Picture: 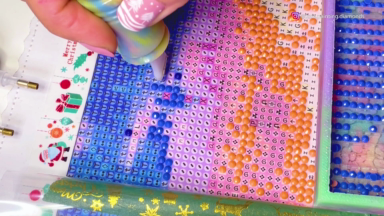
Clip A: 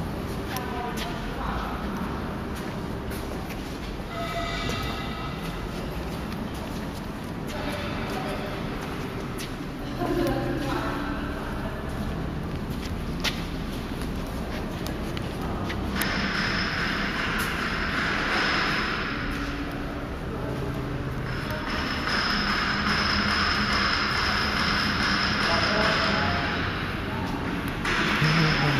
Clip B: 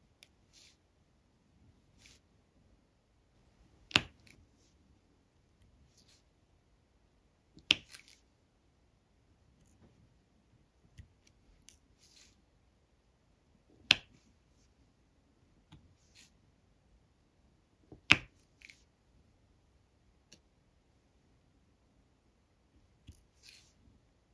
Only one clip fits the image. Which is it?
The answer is B